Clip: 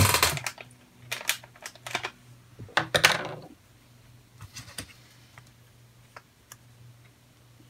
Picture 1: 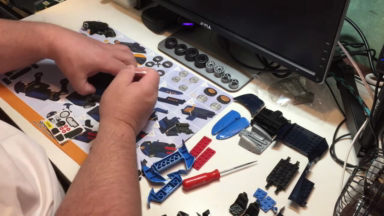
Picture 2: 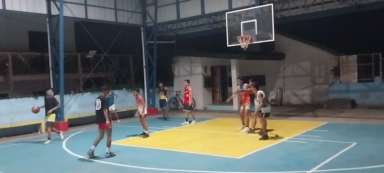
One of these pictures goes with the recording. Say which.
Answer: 1